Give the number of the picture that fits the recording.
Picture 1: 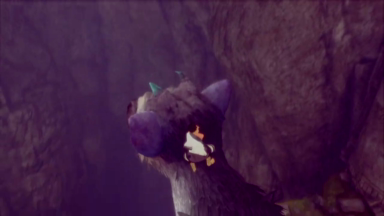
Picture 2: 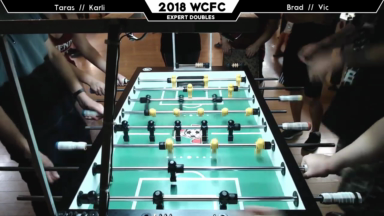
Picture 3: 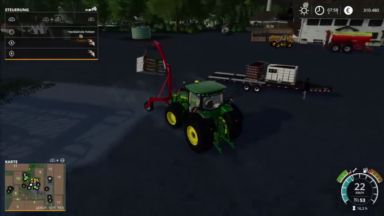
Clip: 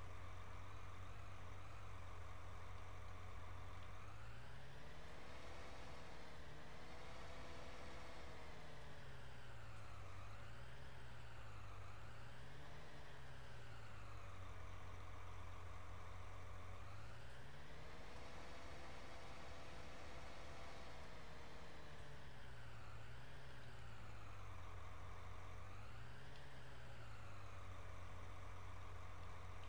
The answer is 3